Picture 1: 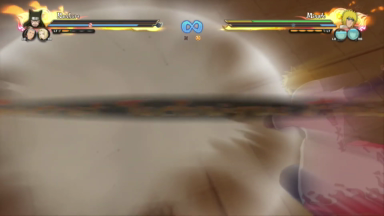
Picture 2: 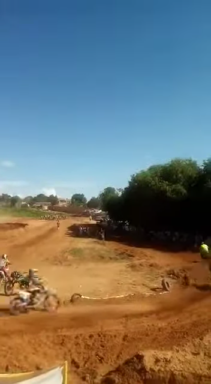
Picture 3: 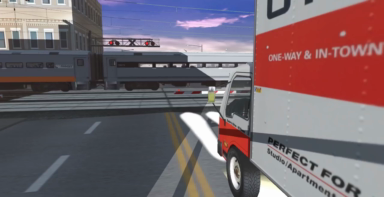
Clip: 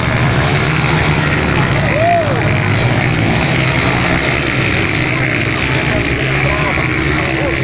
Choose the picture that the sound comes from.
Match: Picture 2